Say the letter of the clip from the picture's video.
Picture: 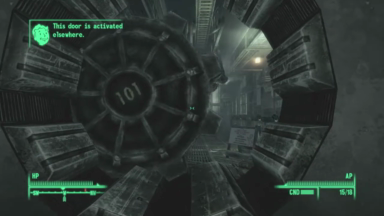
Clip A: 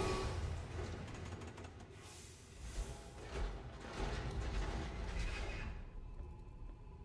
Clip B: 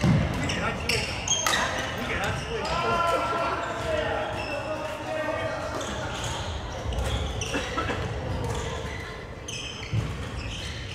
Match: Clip A